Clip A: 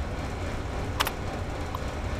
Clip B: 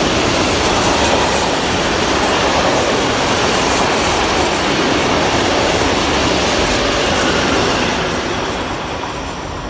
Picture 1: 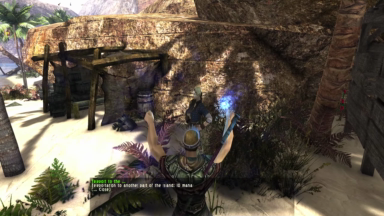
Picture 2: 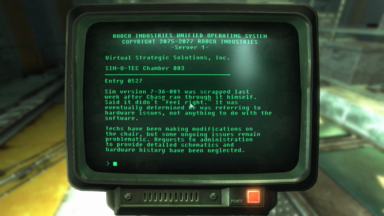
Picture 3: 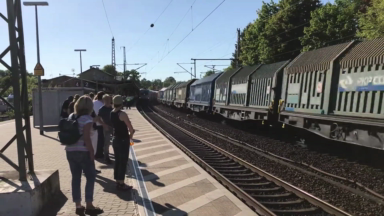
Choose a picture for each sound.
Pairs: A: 2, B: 3